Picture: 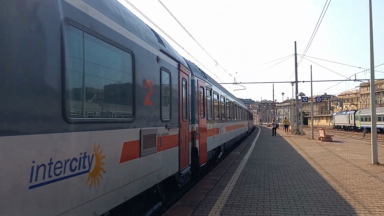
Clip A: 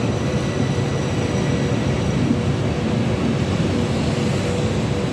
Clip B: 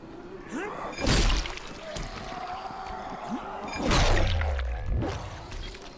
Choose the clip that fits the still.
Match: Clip A